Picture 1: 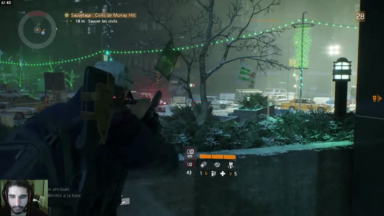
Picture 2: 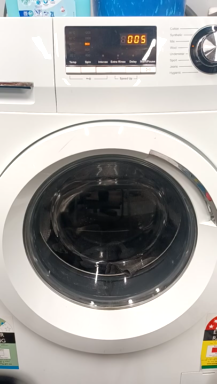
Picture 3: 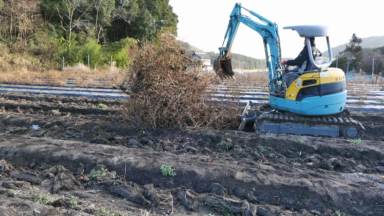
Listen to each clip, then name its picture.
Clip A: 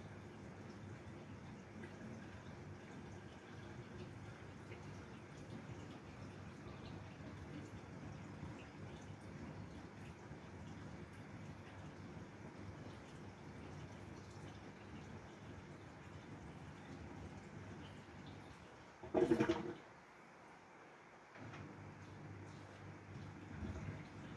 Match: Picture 2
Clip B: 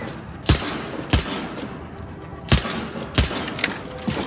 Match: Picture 1